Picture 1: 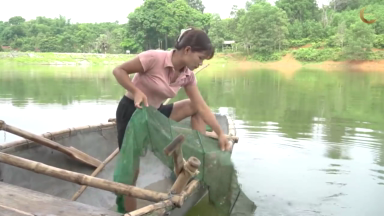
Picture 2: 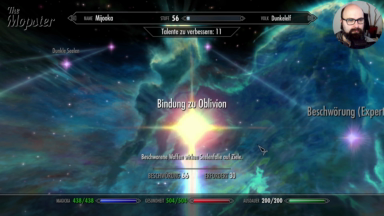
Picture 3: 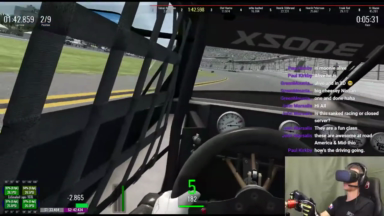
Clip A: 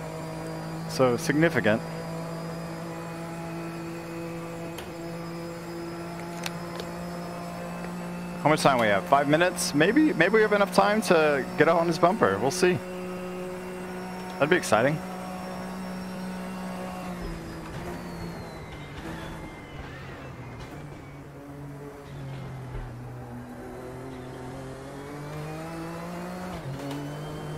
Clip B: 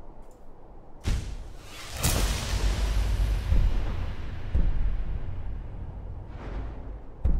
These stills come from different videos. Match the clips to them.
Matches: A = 3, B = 2